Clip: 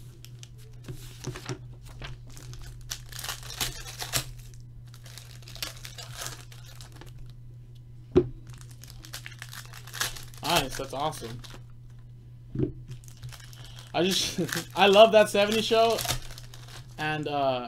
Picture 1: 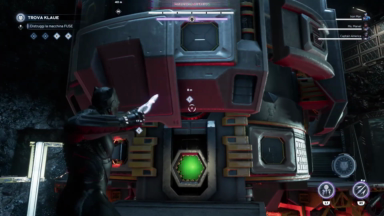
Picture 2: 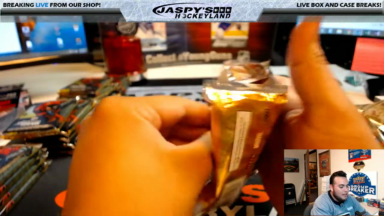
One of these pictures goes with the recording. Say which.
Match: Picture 2